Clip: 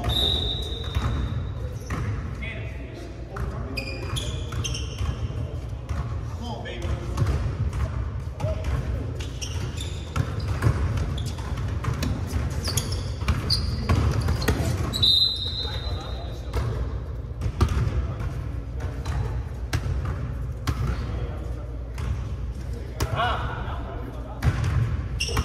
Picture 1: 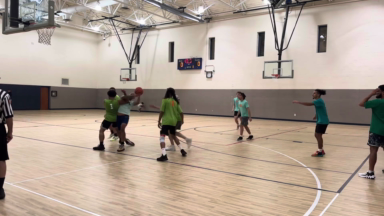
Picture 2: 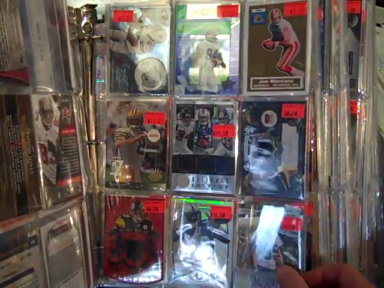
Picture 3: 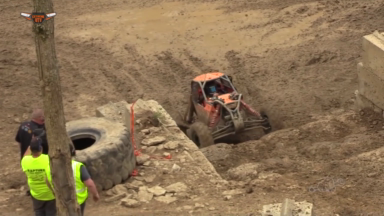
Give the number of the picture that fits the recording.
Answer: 1